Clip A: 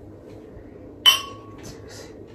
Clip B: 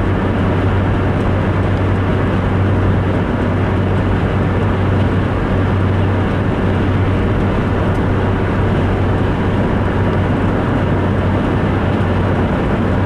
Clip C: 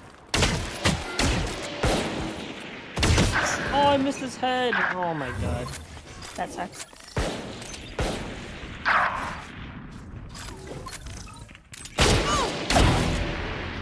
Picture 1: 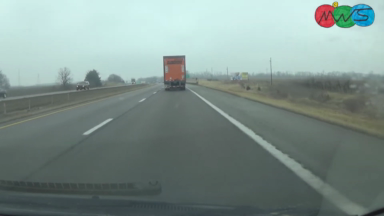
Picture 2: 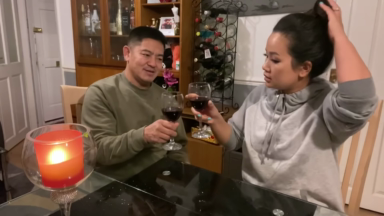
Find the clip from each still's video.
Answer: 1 B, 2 A